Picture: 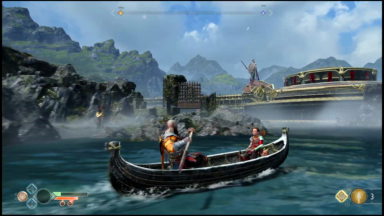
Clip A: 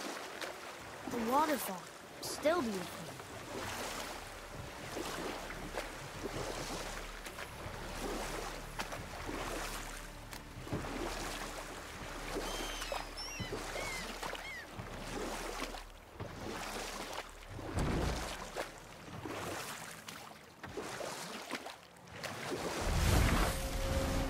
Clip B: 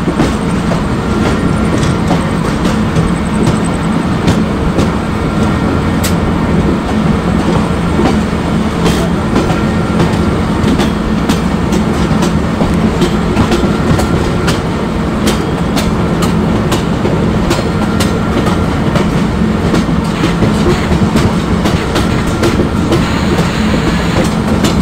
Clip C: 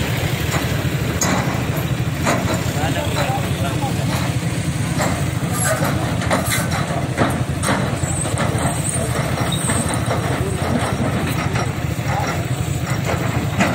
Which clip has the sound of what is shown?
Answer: A